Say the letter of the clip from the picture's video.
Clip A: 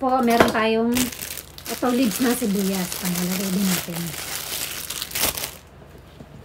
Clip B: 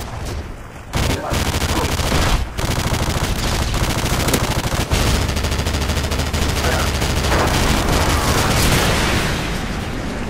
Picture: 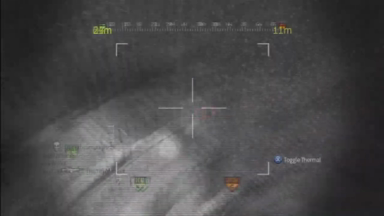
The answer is B